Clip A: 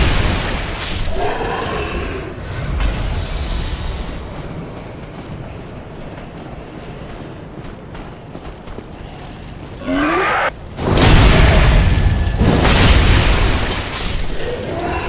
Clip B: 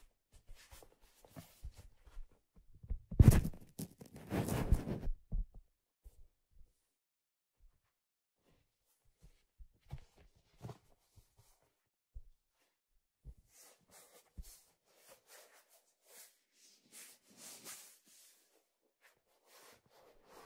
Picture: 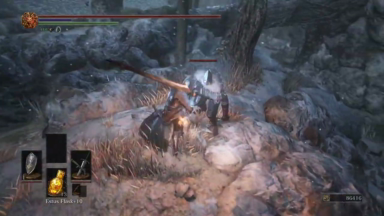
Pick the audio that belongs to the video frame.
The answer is A